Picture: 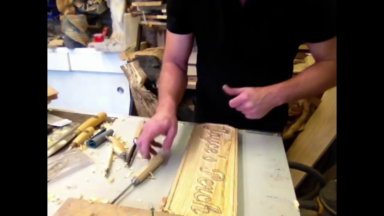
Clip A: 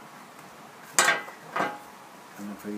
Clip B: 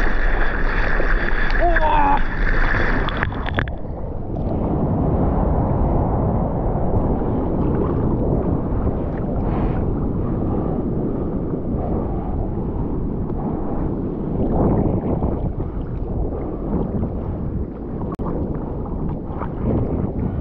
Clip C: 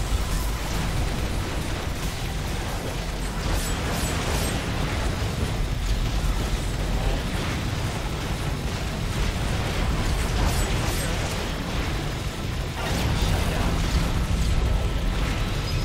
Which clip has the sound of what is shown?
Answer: A